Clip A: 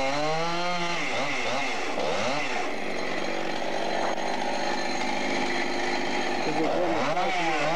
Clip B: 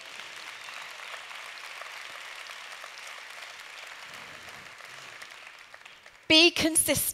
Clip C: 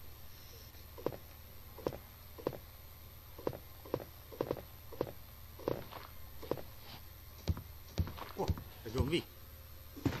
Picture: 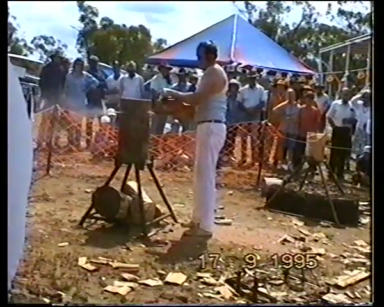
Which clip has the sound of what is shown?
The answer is A